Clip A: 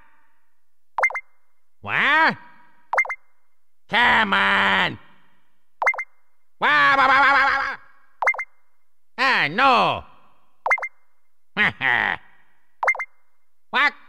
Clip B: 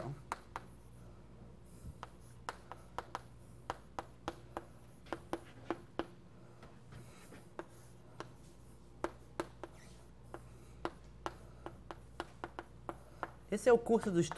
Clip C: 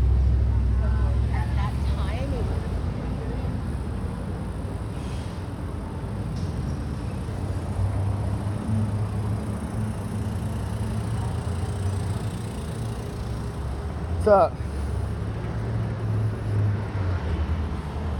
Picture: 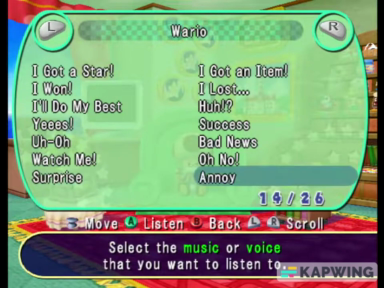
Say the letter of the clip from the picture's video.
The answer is A